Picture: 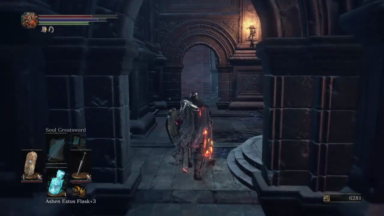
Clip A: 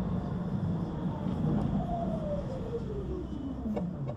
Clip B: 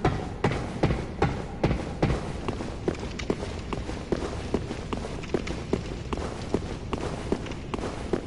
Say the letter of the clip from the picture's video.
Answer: B